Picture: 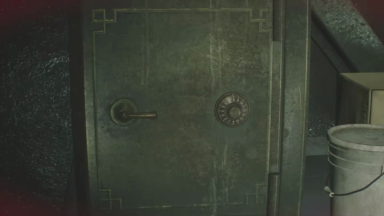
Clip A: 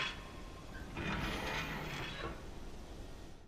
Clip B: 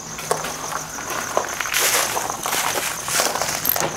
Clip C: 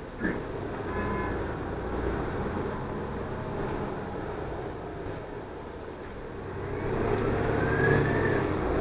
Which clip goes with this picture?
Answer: A